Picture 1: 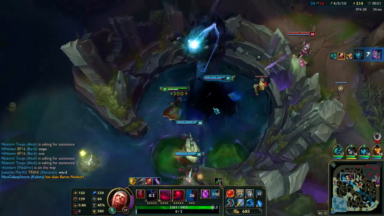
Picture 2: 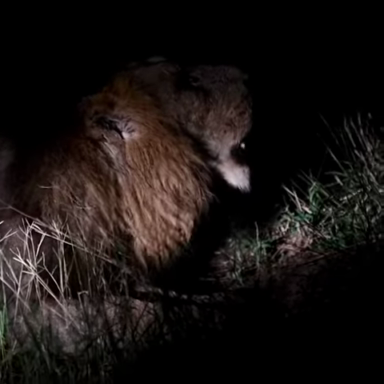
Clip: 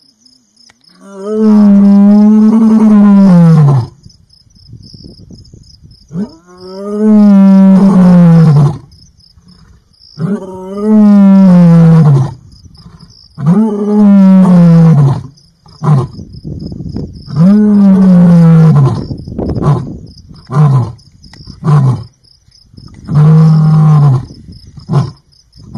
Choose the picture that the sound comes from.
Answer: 2